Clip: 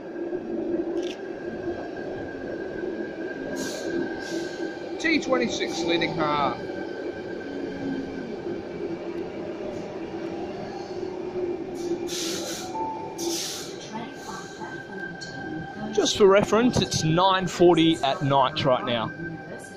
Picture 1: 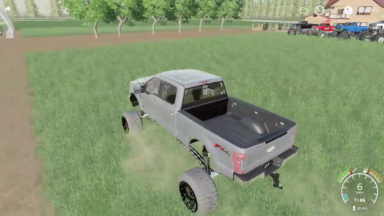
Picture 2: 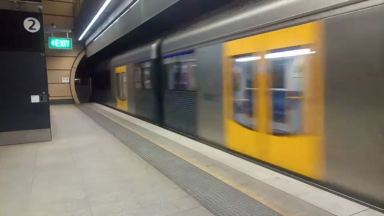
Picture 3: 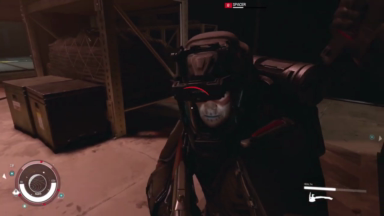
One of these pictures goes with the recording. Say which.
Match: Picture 2